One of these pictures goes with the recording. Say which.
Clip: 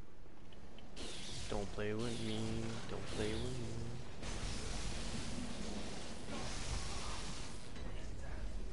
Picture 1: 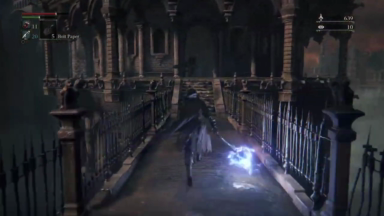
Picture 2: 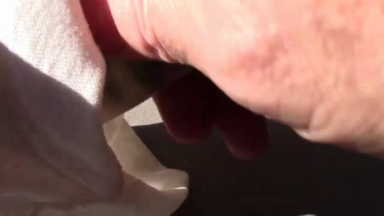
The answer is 1